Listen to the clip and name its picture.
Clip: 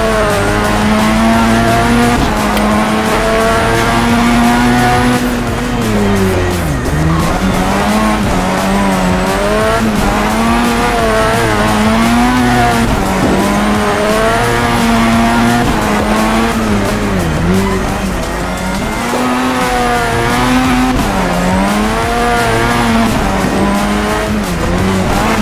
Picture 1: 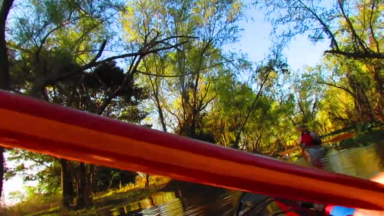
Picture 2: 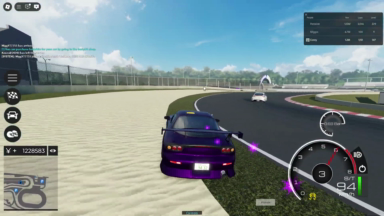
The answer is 2